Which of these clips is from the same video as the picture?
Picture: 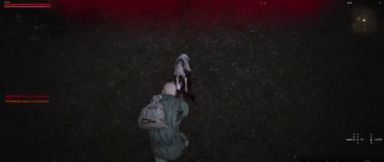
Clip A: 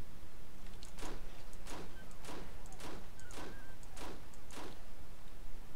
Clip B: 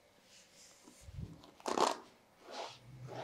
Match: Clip A